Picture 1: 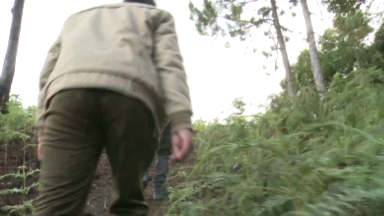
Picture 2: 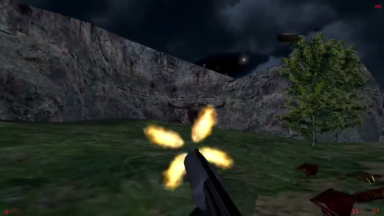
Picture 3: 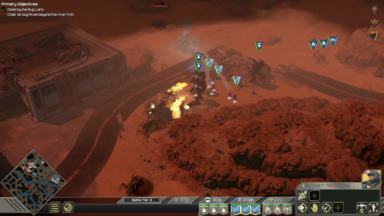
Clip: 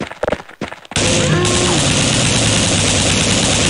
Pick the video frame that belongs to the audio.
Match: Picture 2